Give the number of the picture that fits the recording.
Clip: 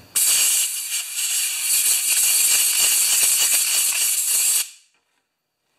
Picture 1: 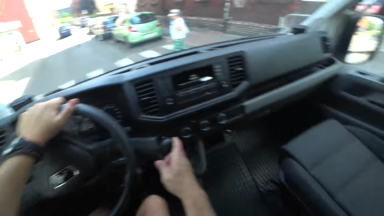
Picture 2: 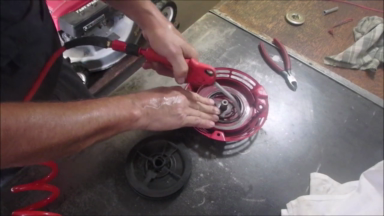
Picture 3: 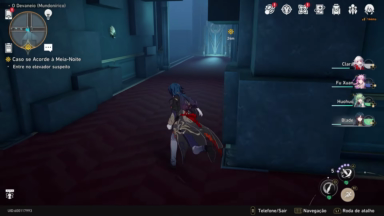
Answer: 2